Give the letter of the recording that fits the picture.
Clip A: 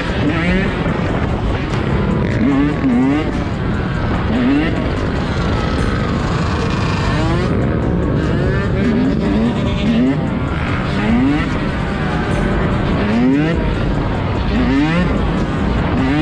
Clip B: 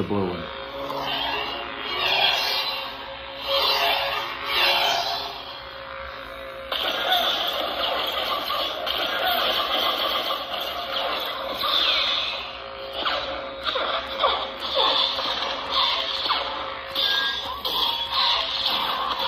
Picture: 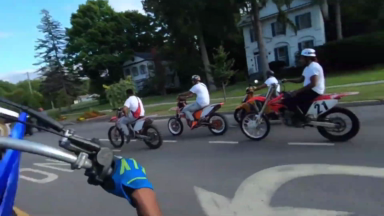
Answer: A